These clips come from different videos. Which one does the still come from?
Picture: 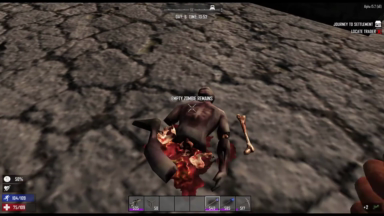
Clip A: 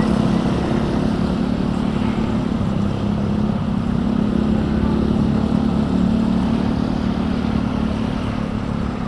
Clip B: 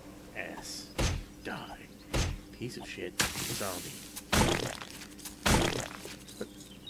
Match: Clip B